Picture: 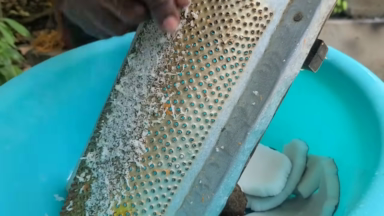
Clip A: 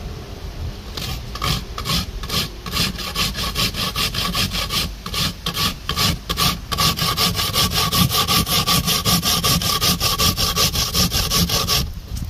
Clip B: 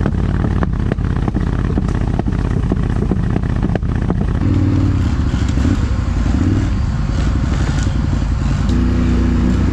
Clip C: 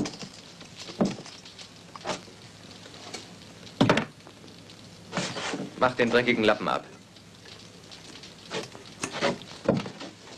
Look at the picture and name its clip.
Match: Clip A